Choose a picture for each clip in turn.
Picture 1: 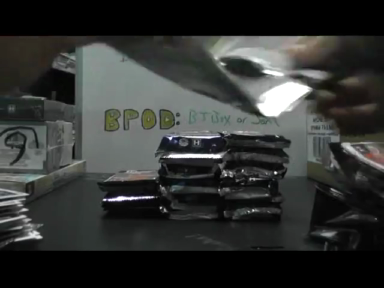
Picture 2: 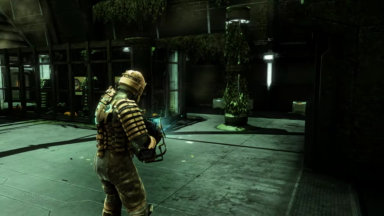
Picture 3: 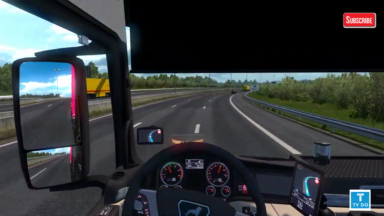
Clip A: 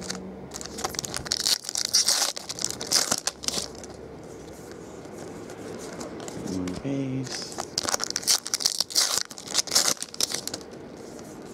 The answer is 1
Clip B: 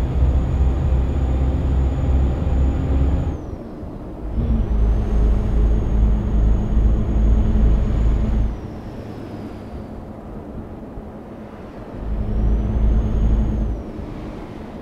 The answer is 3